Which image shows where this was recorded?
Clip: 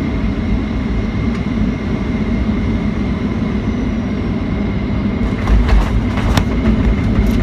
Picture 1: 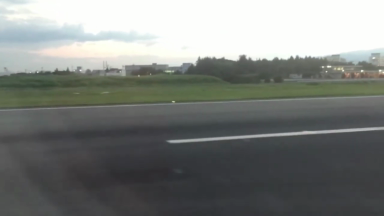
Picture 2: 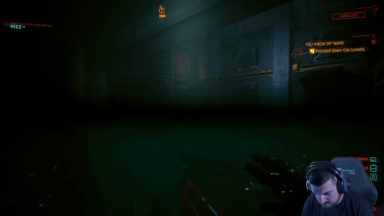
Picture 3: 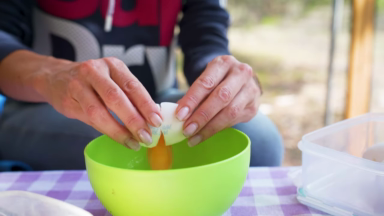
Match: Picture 1